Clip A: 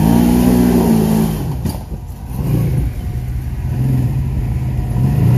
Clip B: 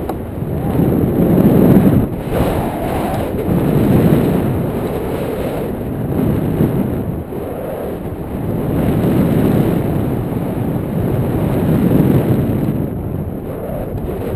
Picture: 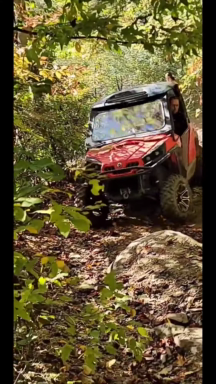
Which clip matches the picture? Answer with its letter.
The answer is A